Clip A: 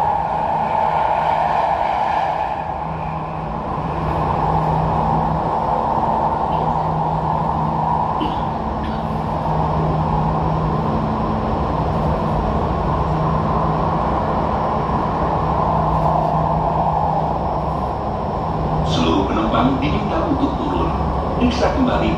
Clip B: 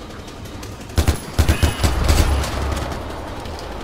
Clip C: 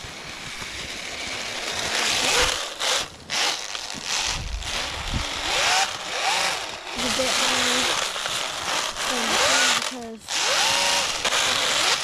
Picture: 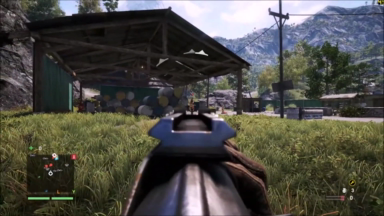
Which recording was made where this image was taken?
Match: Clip B